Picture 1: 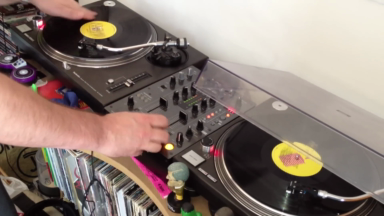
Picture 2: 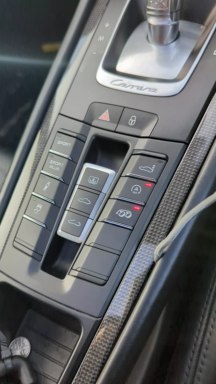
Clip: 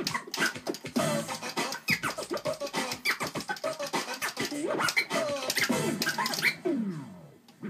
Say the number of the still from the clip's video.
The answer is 1